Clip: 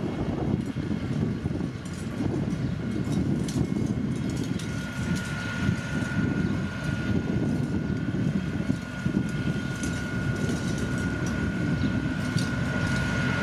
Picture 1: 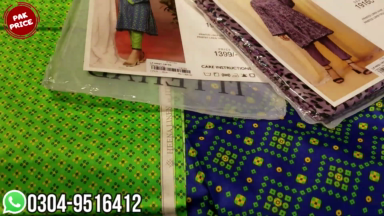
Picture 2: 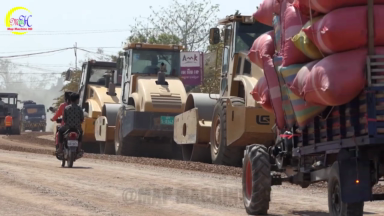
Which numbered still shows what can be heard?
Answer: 2